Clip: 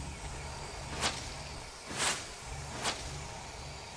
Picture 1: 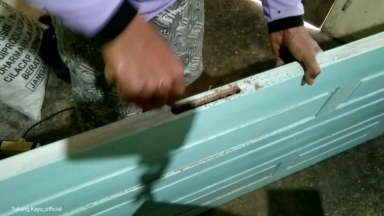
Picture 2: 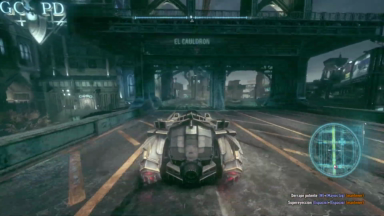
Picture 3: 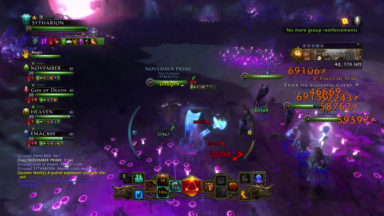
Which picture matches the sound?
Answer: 3